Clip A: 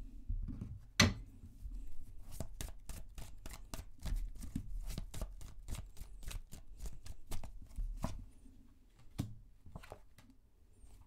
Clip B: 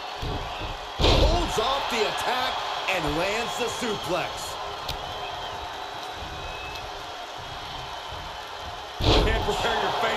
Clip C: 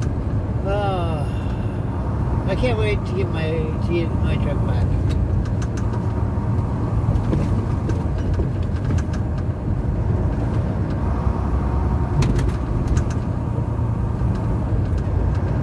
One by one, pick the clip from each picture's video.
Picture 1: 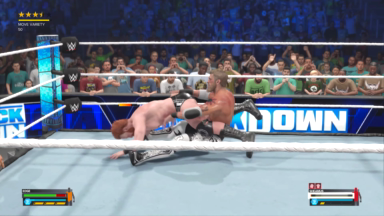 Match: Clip B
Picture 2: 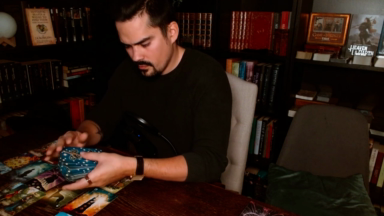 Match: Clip A